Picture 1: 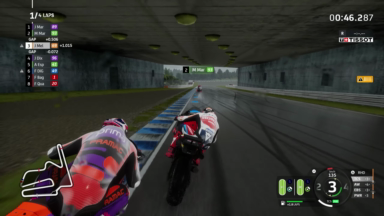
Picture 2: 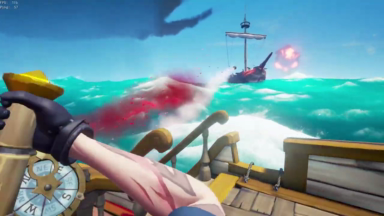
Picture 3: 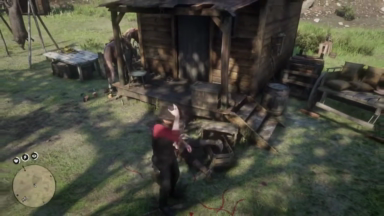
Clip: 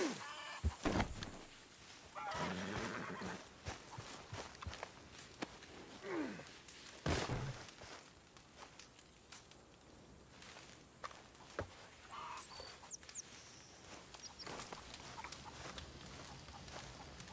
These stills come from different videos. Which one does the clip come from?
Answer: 3